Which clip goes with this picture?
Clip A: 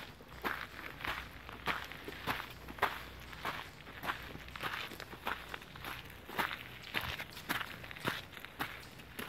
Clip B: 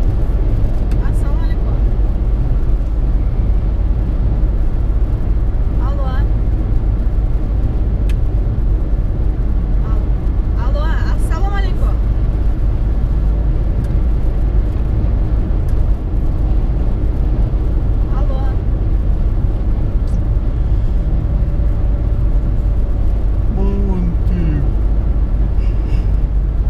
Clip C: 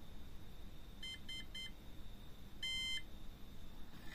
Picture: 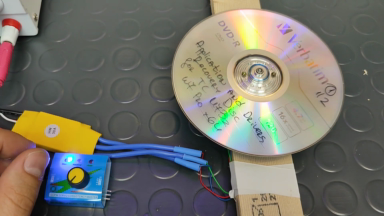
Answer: C